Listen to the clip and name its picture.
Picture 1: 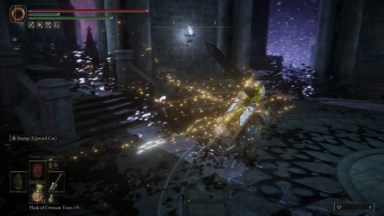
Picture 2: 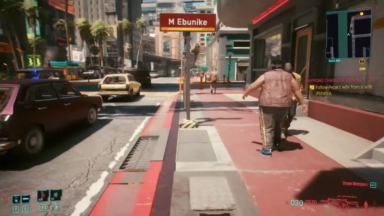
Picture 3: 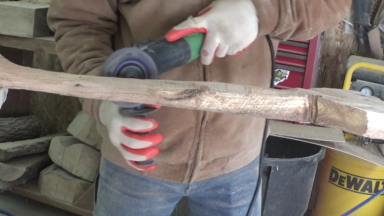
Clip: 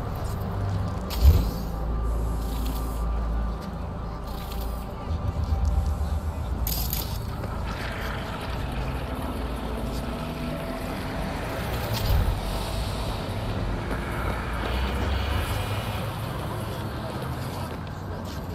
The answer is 2